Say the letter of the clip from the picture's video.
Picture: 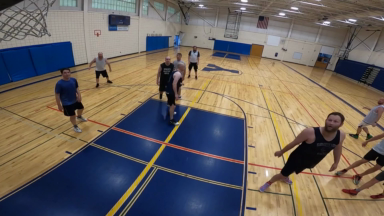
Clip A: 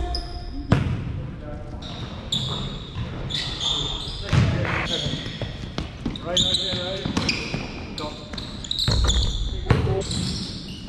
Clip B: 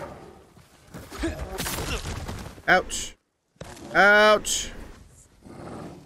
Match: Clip A